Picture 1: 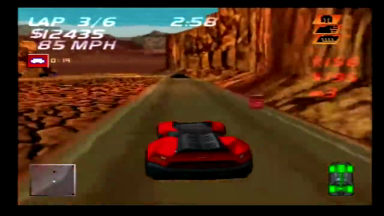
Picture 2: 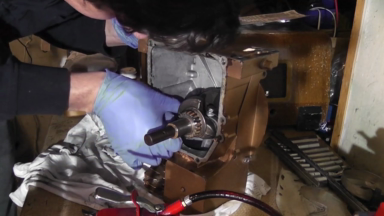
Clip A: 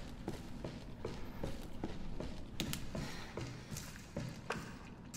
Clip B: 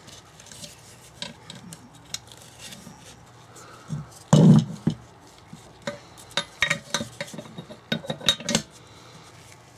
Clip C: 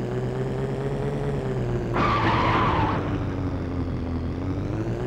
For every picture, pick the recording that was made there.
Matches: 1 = C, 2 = B